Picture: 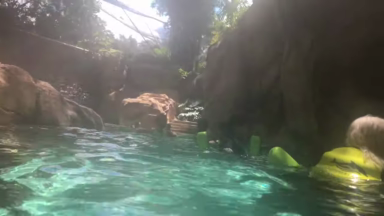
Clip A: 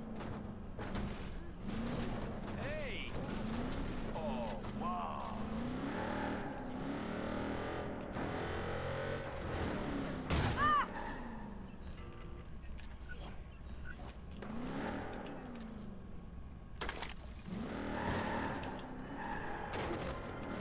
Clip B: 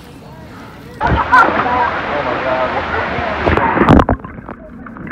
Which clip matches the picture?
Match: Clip B